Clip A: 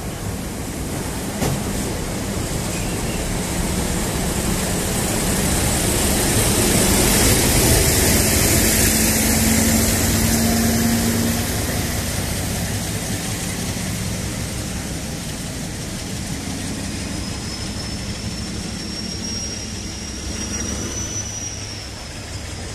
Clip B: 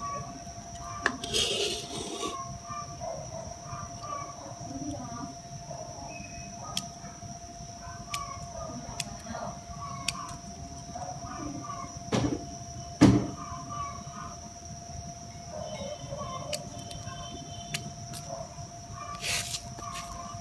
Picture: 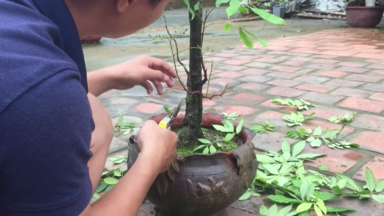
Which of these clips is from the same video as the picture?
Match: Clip B